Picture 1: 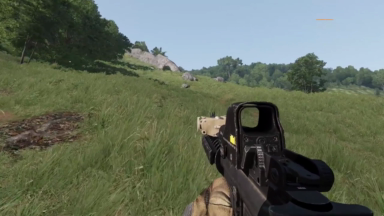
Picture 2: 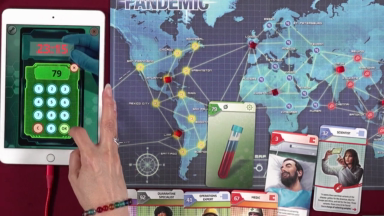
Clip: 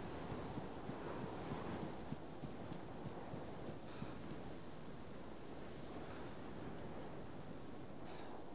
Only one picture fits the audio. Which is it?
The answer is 1